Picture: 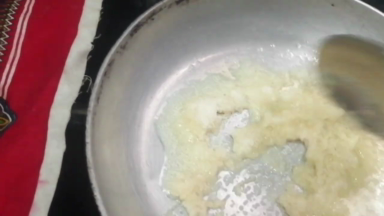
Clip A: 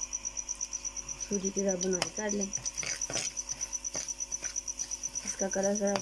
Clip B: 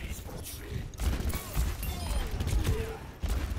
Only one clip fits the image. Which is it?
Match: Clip A